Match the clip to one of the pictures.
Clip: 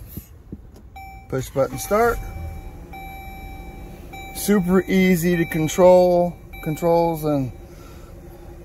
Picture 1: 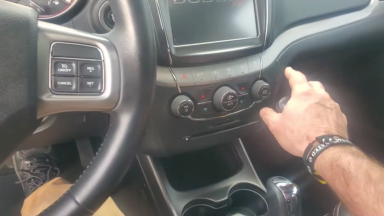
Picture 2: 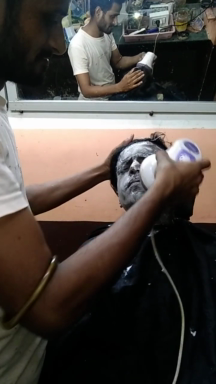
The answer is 1